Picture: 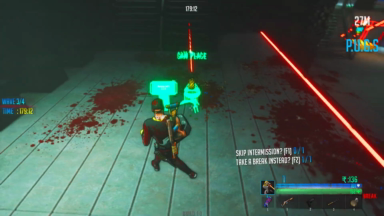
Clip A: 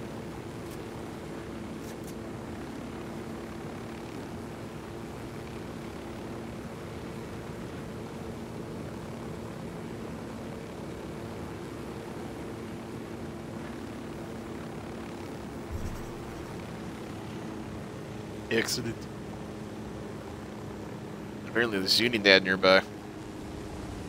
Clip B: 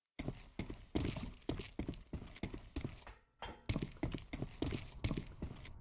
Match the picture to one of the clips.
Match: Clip B